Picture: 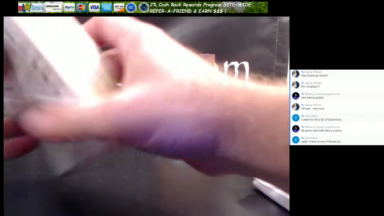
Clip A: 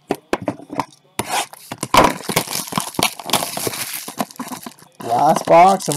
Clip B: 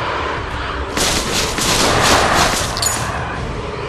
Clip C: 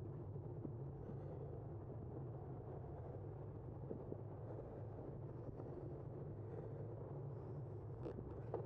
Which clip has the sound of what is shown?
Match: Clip A